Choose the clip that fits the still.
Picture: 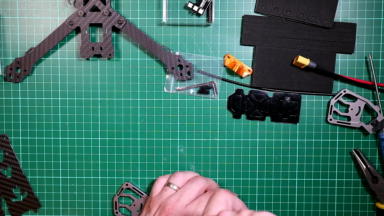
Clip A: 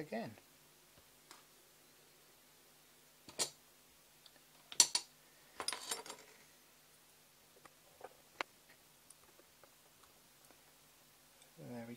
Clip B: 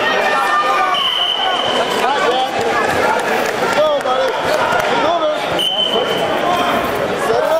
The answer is A